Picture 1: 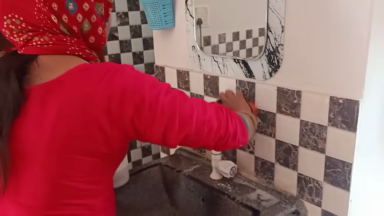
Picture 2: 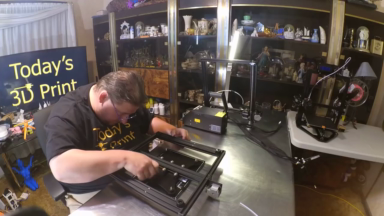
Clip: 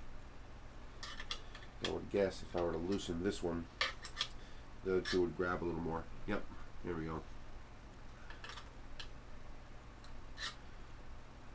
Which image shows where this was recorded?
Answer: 2